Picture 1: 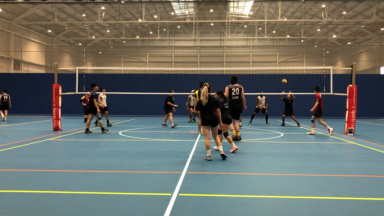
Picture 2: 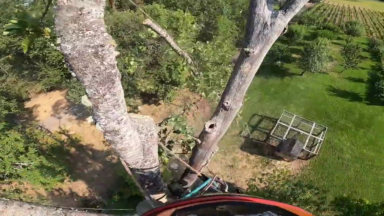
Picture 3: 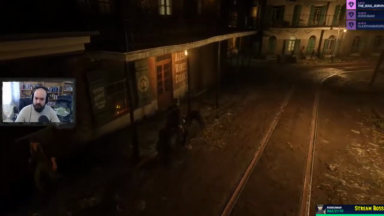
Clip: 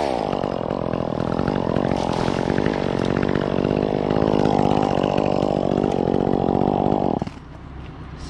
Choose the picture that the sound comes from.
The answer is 2